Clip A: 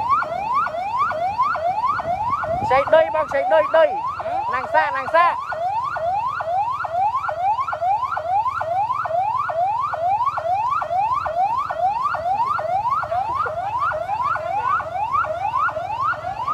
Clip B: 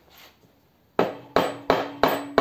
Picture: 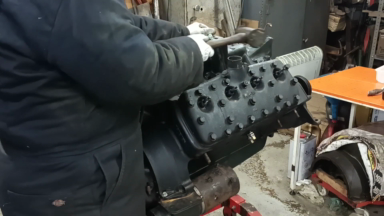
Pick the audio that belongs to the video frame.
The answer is B